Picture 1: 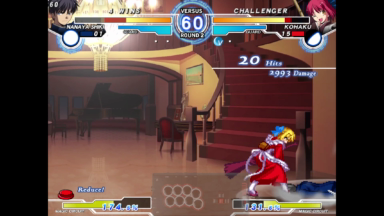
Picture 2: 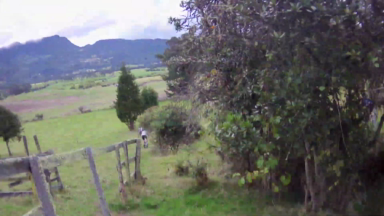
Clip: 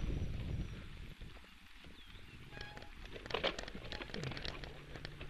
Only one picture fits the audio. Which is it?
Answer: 2